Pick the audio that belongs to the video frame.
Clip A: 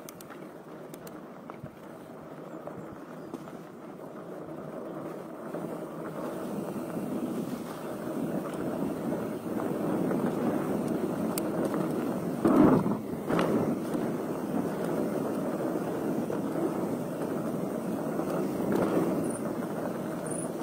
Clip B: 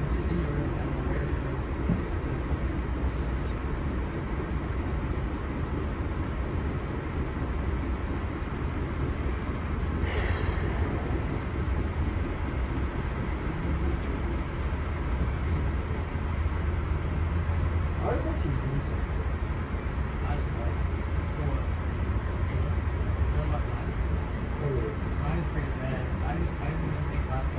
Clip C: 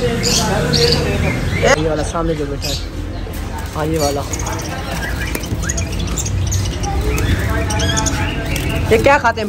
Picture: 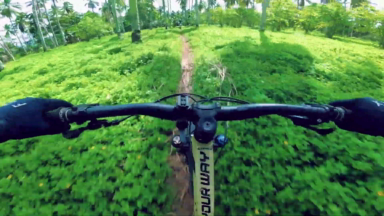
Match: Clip A